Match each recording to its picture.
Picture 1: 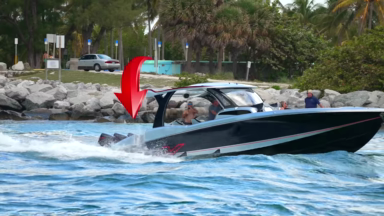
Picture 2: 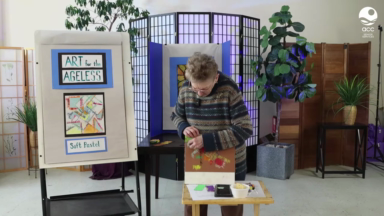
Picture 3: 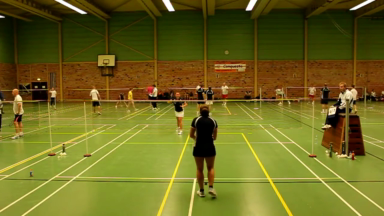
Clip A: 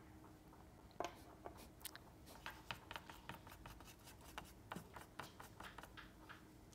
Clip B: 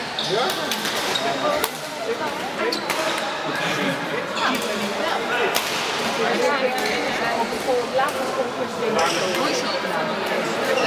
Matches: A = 2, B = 3